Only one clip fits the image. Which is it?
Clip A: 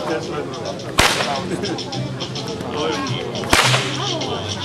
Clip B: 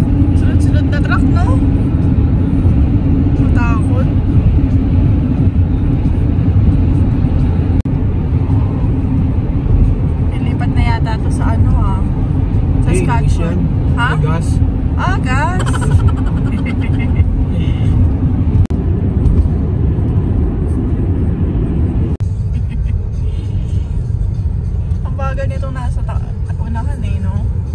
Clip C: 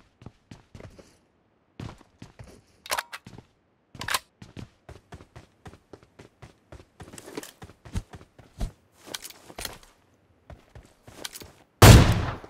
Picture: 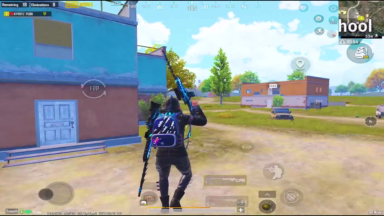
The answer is C